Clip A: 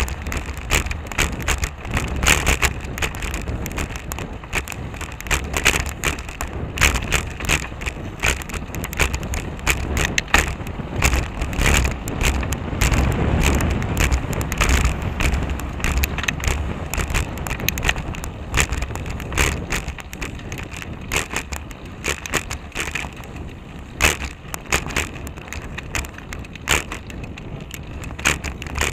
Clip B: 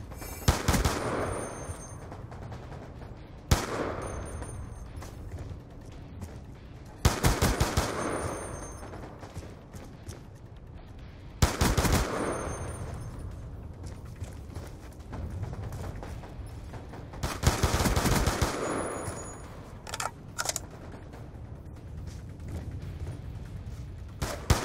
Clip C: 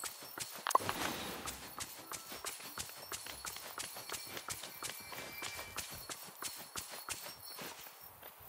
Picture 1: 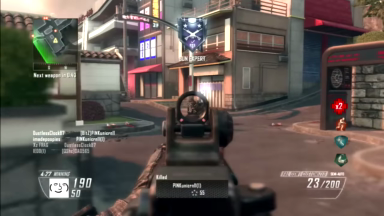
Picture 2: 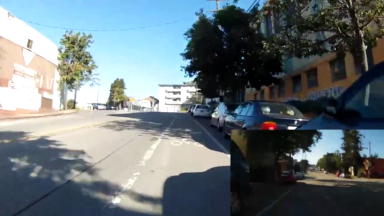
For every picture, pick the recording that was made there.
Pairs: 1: B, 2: A